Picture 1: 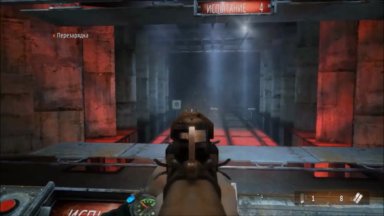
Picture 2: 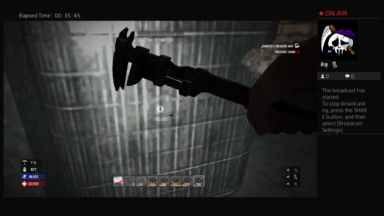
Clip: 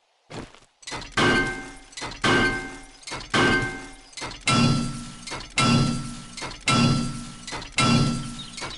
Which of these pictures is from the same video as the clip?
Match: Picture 2